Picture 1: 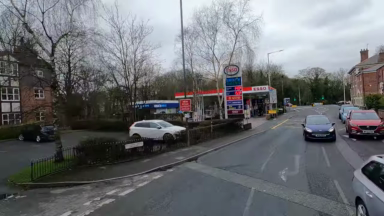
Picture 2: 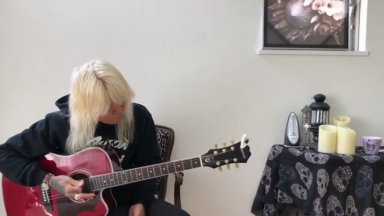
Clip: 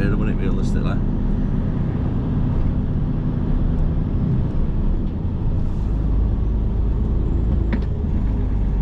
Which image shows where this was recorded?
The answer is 1